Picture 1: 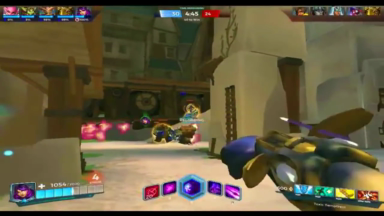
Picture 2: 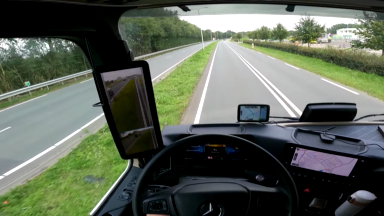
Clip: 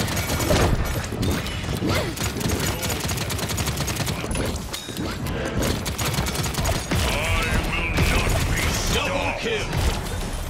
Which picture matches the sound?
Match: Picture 1